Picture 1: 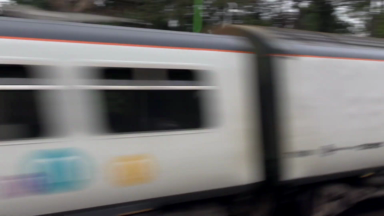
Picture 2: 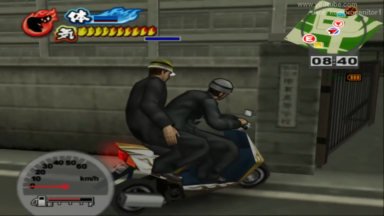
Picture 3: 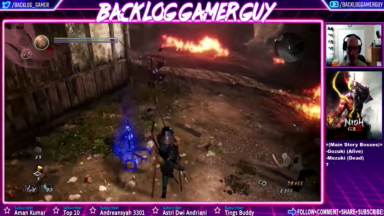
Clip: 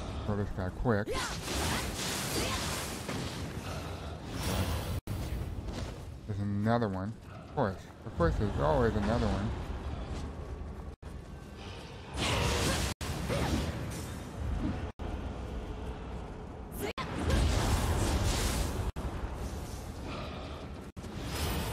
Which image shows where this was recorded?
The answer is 3